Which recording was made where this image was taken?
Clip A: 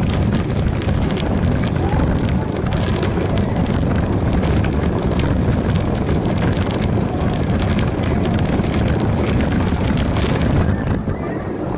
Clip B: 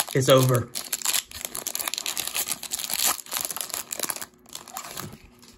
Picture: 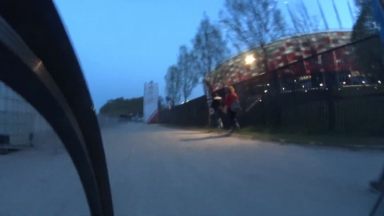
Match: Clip A